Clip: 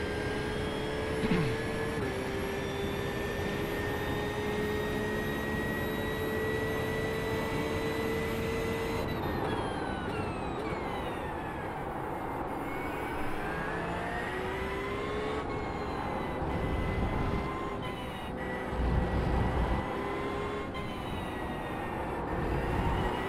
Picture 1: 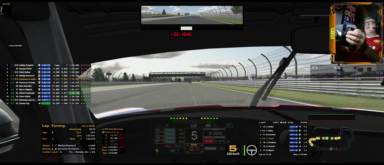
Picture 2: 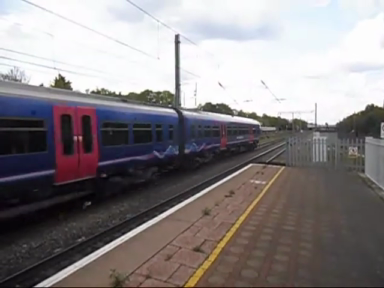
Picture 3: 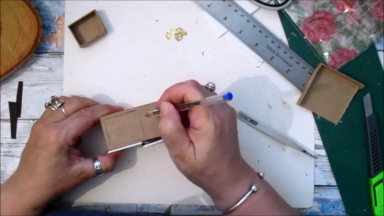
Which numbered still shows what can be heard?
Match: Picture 1